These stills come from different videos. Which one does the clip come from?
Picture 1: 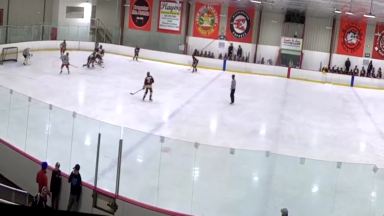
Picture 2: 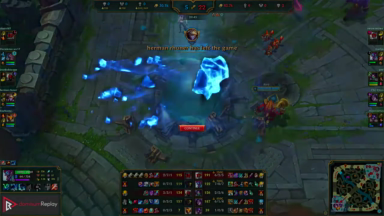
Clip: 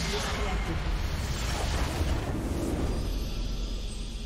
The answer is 2